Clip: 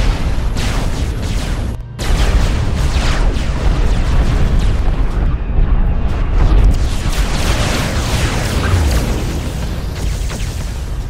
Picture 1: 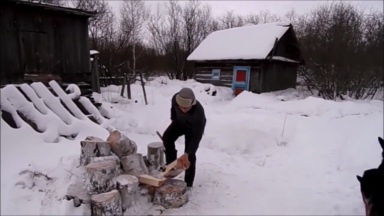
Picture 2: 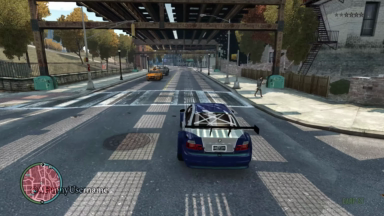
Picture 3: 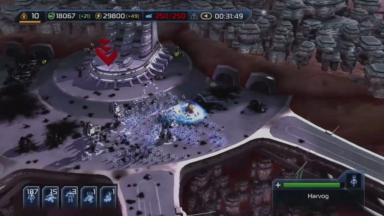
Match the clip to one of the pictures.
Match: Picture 3